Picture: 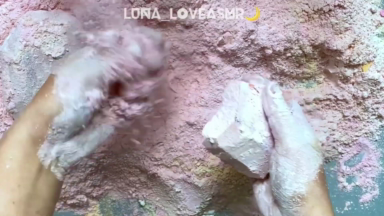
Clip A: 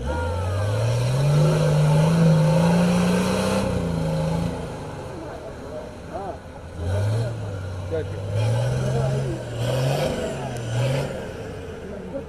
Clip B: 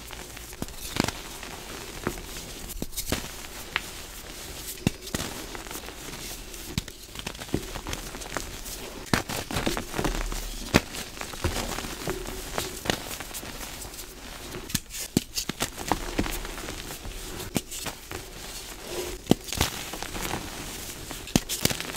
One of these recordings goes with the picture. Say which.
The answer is B